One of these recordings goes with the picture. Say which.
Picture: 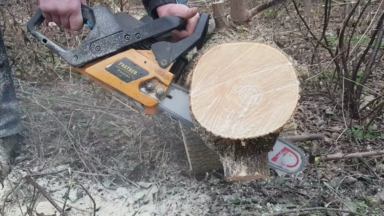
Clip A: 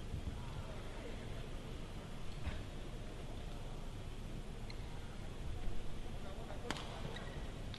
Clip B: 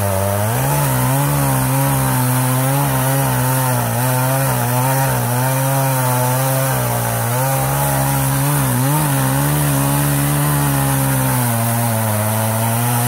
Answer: B